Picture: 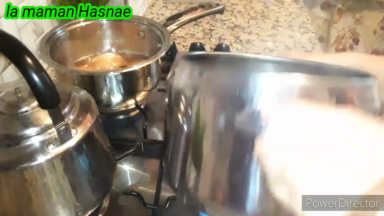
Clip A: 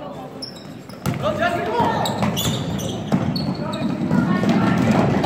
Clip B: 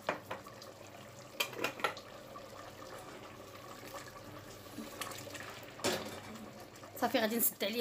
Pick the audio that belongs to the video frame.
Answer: B